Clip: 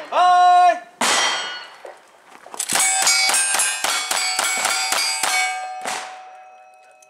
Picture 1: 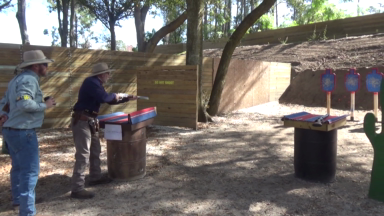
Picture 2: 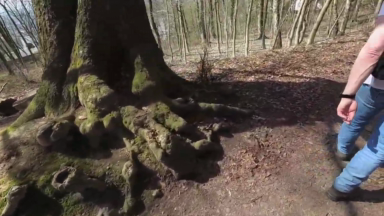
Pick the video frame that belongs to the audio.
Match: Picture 1